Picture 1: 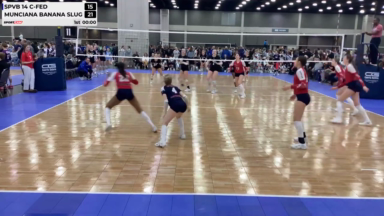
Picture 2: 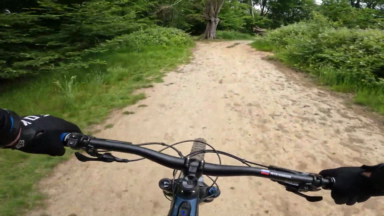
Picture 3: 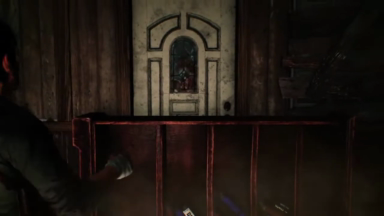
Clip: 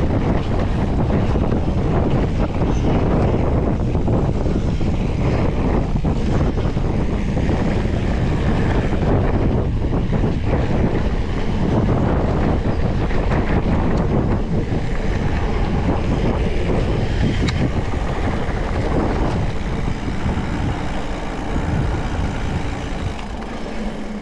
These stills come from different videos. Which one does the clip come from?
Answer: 2